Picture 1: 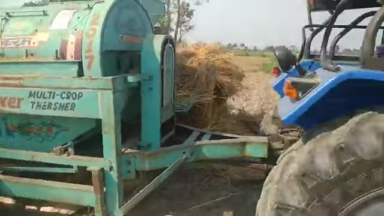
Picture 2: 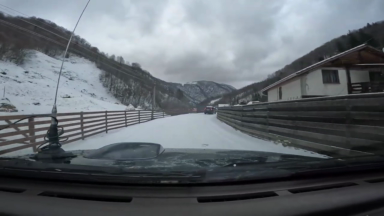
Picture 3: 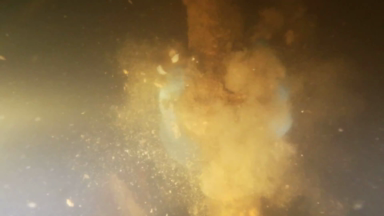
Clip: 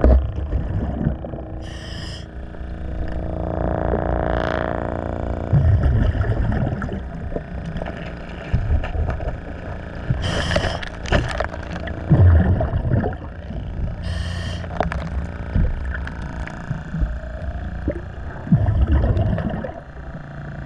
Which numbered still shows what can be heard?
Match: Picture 3